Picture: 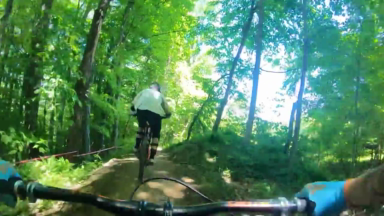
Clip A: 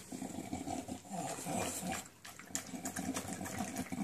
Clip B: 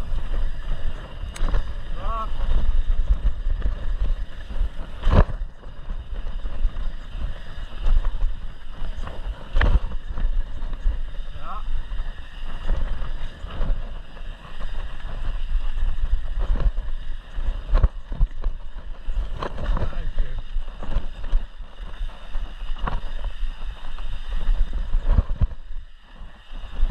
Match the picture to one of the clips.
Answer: B